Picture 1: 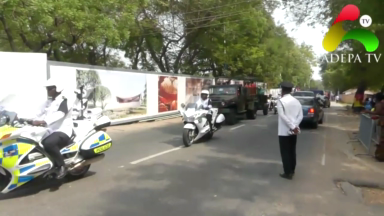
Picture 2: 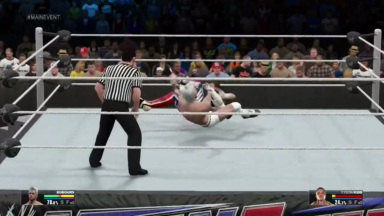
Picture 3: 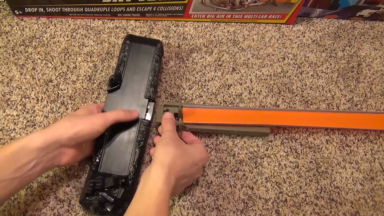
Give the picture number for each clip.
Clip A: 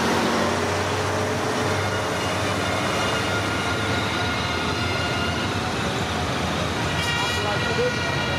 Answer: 1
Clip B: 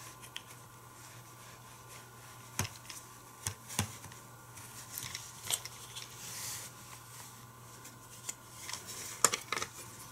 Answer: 3